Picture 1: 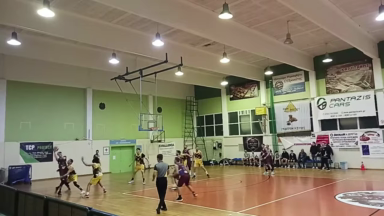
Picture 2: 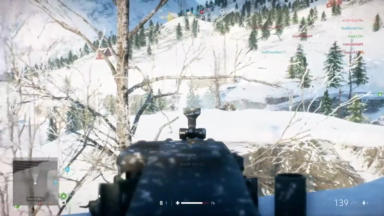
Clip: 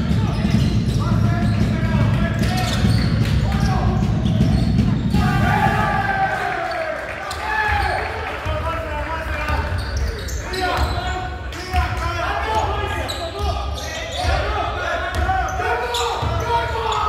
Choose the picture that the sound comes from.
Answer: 1